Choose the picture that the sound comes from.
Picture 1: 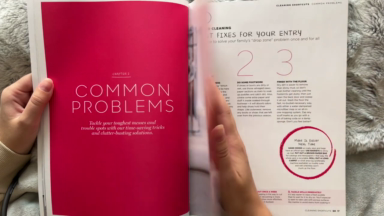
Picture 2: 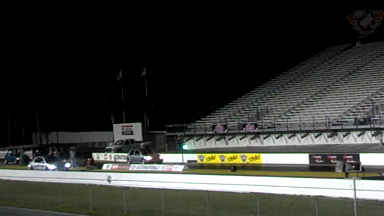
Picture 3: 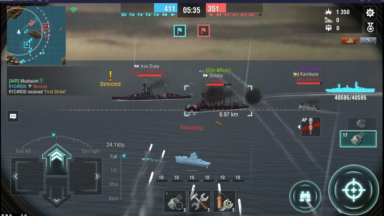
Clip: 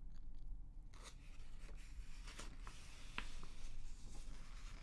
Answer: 1